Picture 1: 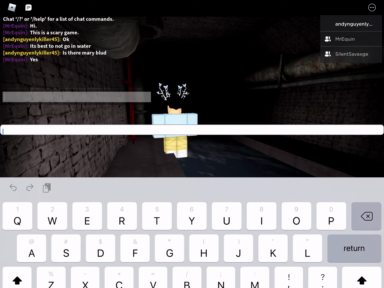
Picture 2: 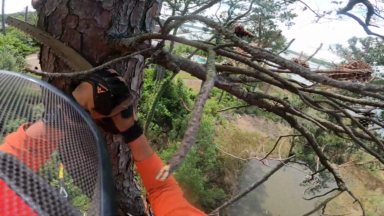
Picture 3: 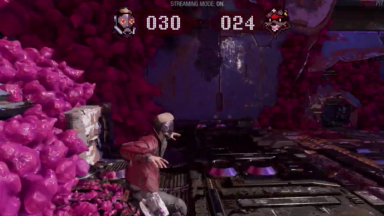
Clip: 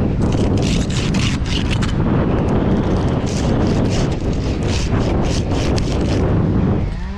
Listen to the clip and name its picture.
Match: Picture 2